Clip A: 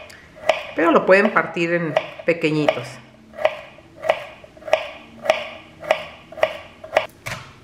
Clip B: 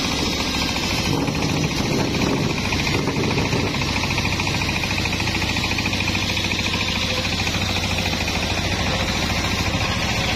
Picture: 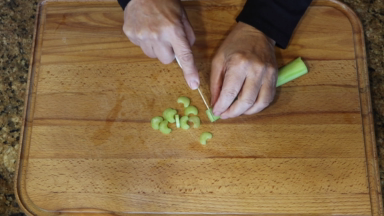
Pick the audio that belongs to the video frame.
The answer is A